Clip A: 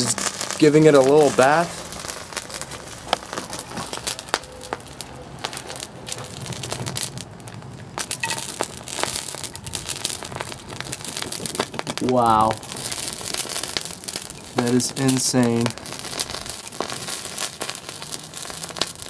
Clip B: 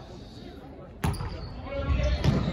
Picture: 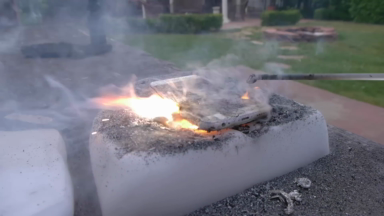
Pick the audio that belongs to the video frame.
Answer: A